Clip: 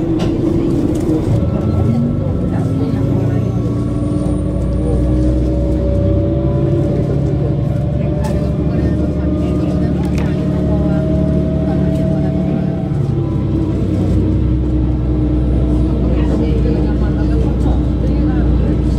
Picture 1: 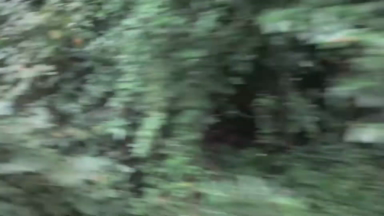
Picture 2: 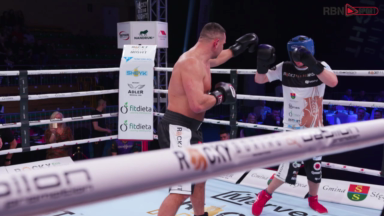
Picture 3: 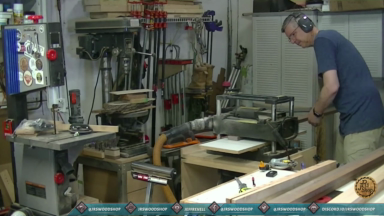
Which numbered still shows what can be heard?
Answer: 1